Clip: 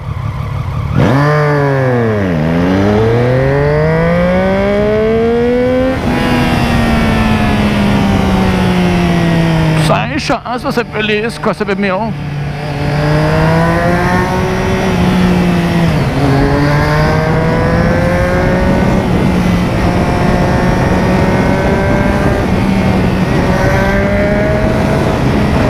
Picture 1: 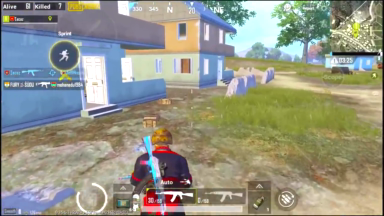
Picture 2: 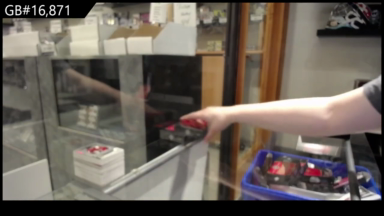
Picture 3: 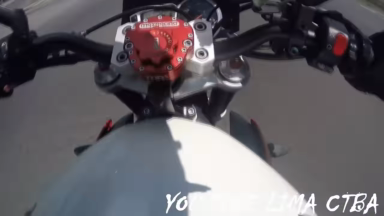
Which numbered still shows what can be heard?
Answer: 3